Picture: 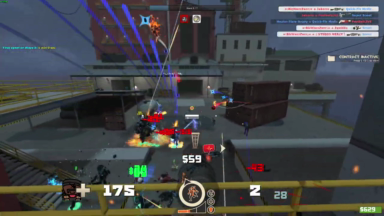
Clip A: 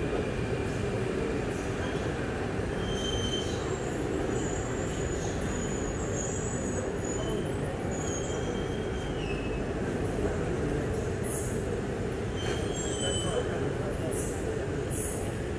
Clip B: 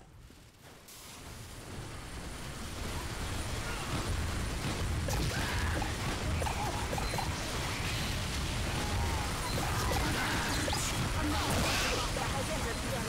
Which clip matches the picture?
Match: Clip B